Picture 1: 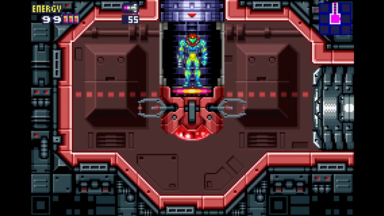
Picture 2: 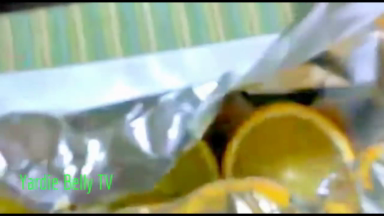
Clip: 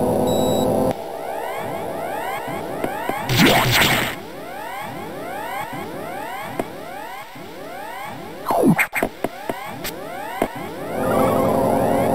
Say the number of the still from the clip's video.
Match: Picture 1